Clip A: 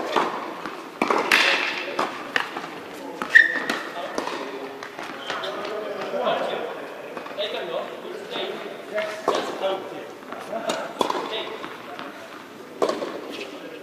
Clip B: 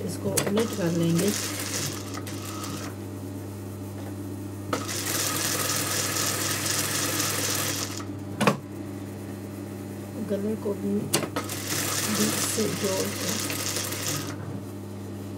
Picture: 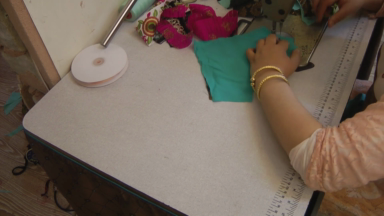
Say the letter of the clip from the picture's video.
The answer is B